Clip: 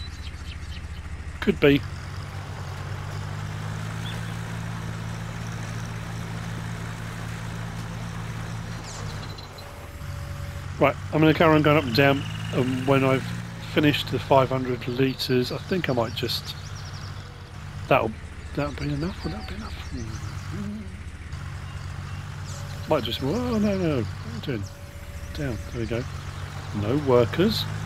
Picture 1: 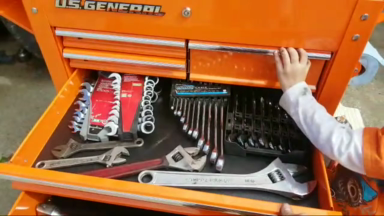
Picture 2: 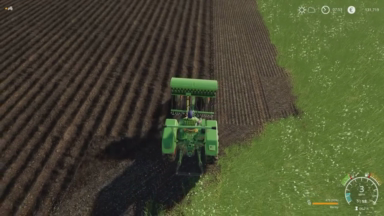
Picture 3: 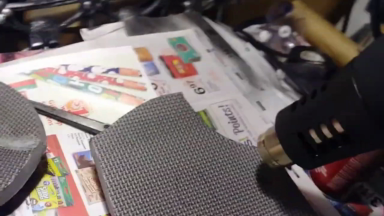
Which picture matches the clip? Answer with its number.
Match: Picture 2